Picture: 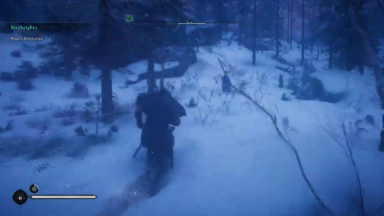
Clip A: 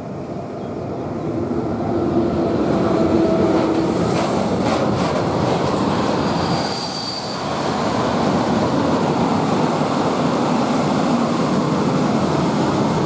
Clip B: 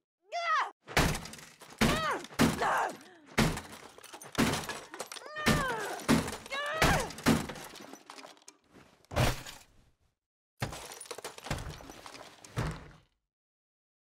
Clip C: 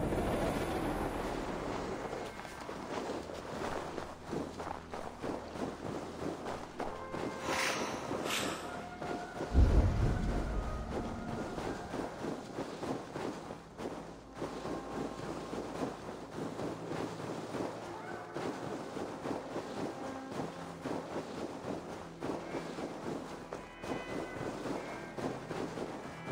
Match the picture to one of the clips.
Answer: C